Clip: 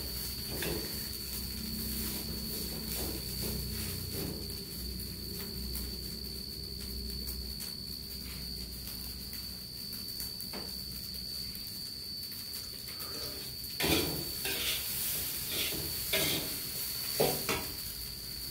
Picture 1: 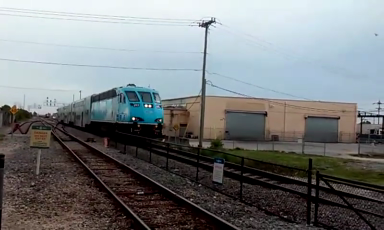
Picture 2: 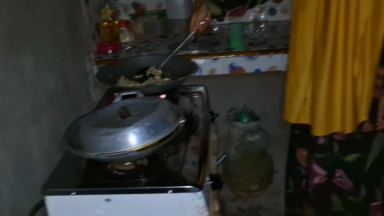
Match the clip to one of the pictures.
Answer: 2